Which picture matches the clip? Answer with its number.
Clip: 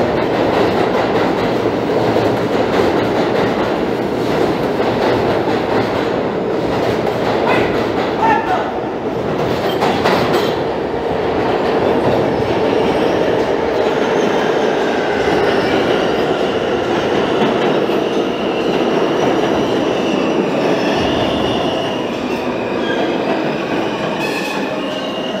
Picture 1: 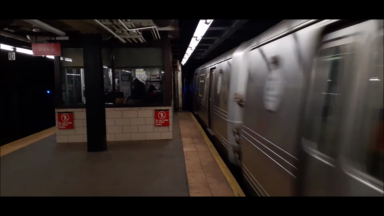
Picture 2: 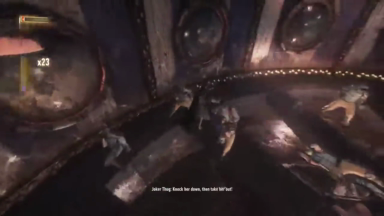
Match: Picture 1